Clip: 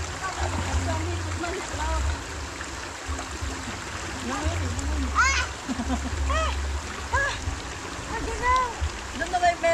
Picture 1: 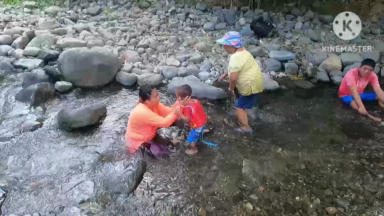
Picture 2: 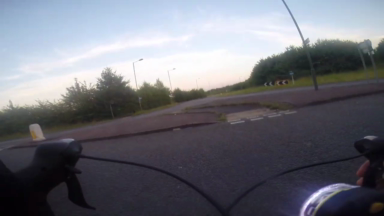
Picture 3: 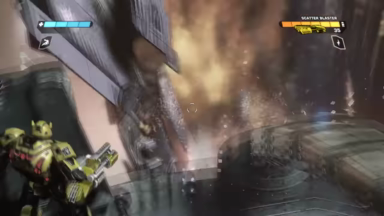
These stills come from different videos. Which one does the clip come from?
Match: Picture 1